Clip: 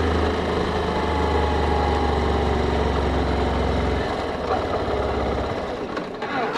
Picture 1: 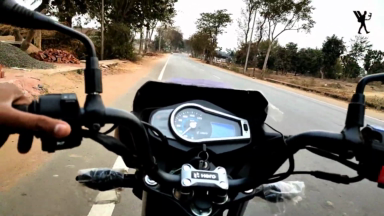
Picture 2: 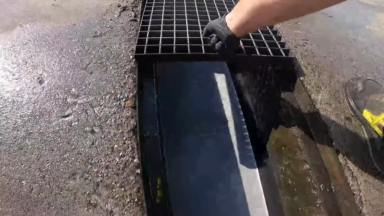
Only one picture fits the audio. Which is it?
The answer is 1